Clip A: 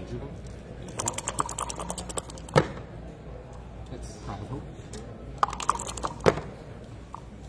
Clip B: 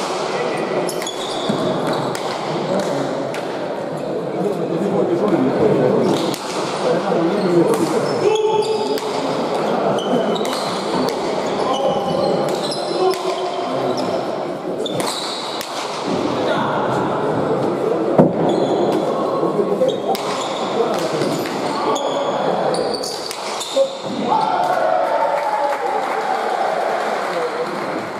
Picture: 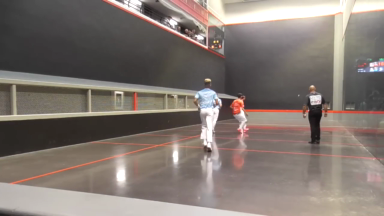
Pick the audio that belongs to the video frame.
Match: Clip B